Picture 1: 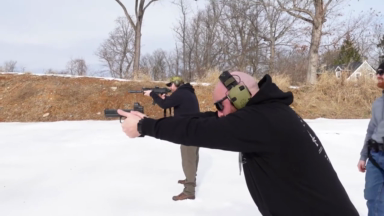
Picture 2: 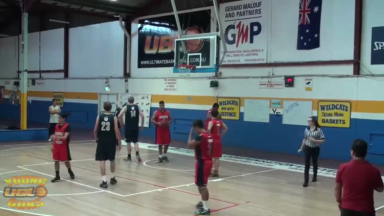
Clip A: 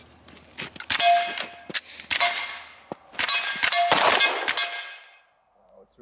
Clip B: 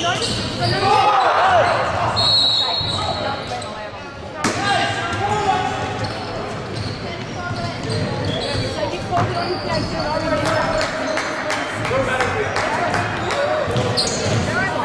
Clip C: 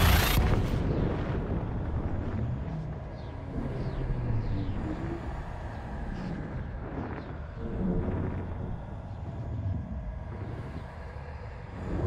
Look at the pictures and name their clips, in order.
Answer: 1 A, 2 B